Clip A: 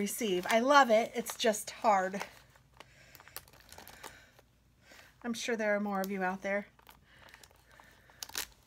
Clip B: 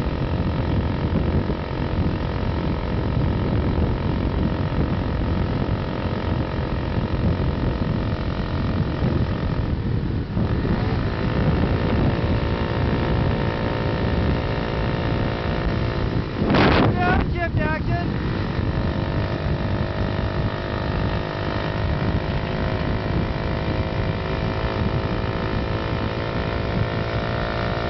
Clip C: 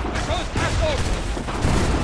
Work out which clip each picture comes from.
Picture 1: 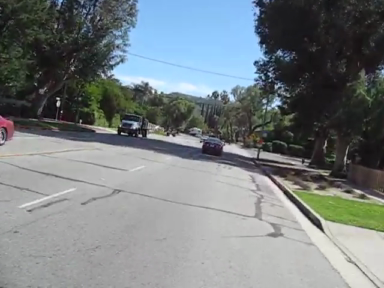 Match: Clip B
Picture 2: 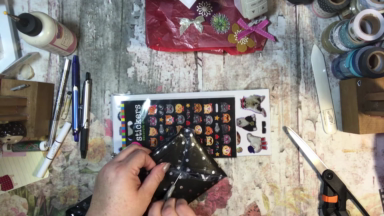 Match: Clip A